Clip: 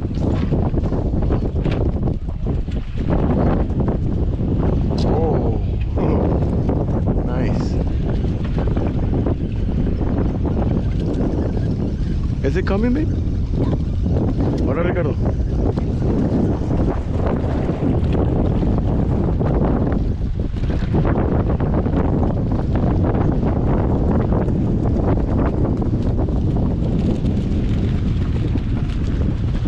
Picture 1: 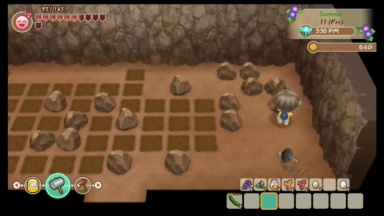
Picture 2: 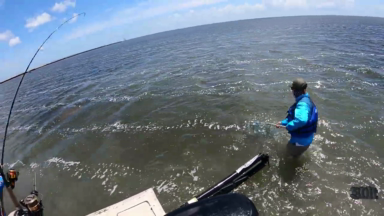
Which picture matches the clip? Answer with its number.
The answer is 2